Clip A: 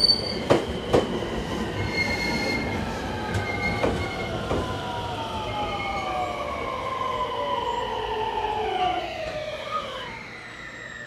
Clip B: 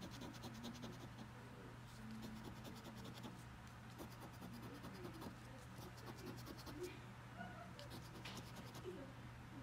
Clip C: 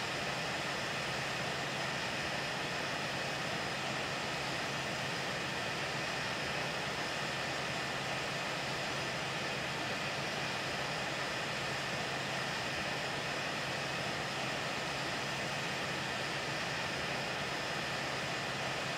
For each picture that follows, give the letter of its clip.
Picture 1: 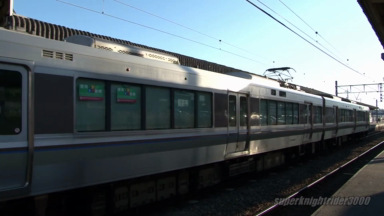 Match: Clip A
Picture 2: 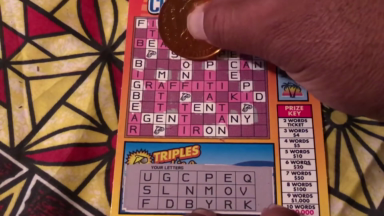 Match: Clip B